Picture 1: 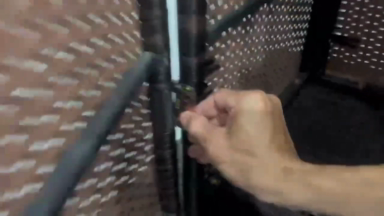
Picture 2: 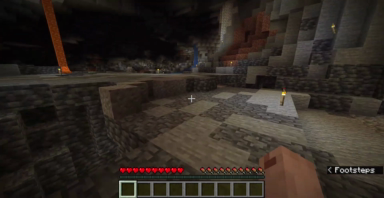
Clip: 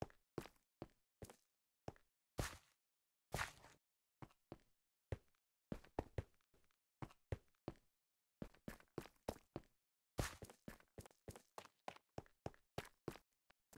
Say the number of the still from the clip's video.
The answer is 2